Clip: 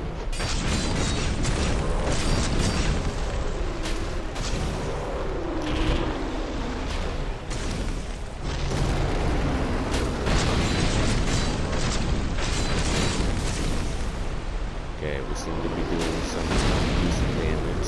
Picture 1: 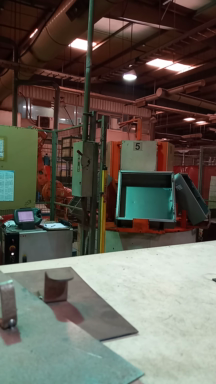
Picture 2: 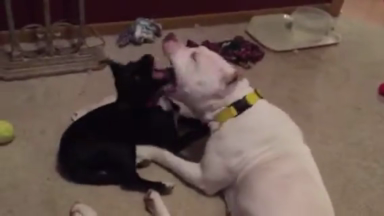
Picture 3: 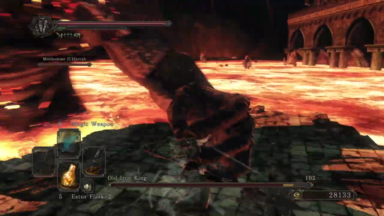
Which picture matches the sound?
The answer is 3